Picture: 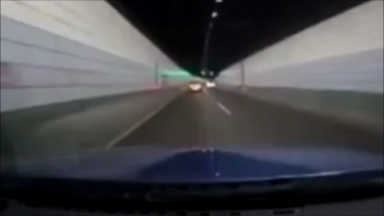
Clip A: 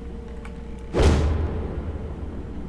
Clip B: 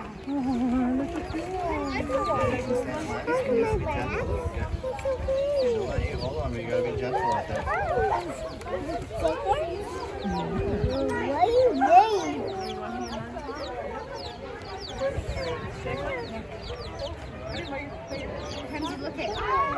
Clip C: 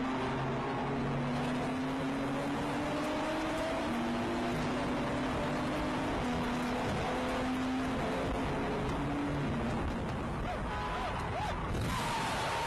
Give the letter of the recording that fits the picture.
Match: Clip C